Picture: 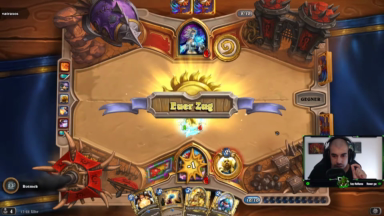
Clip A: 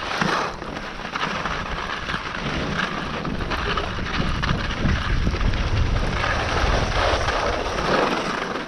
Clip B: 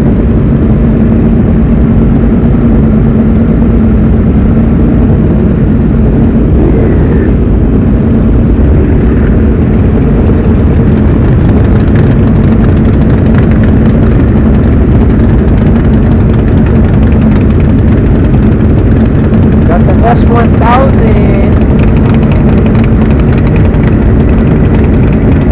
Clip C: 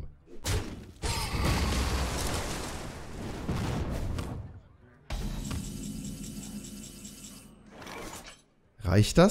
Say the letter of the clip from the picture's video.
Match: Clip C